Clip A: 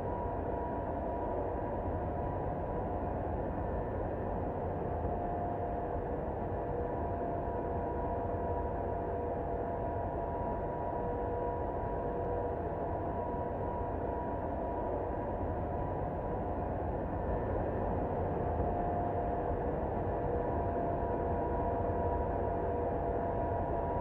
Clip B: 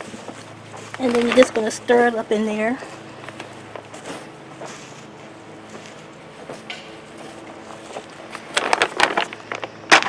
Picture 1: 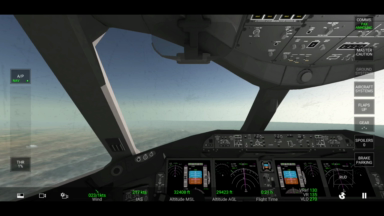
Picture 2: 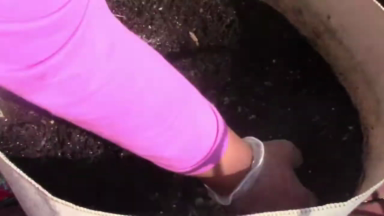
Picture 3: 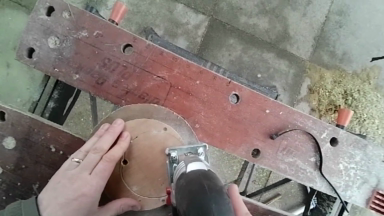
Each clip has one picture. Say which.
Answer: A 1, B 2